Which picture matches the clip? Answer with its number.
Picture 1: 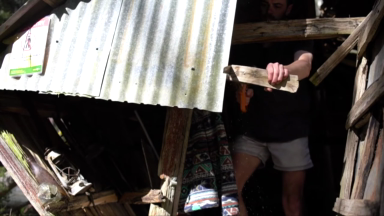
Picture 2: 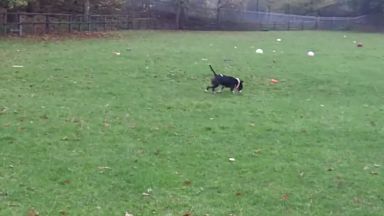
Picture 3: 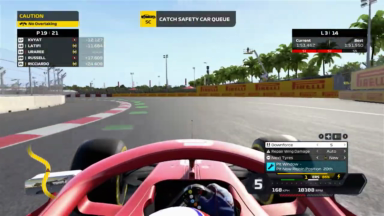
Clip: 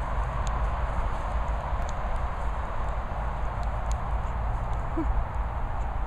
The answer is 2